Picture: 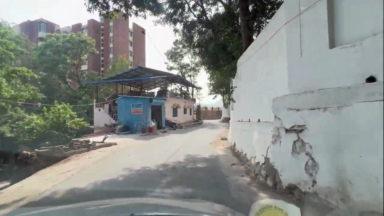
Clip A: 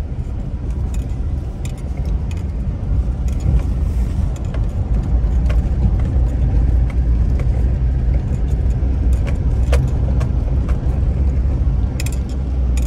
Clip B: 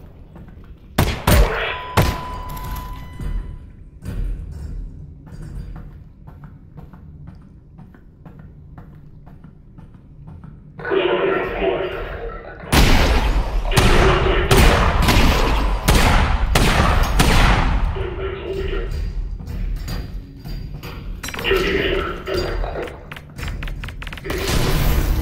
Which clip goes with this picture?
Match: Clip A